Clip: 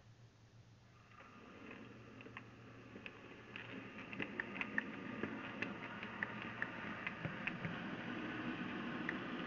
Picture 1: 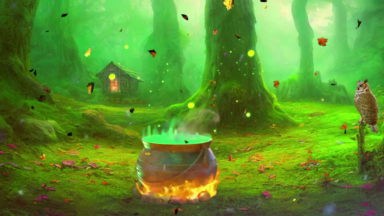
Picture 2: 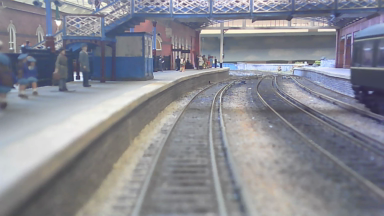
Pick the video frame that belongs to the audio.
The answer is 2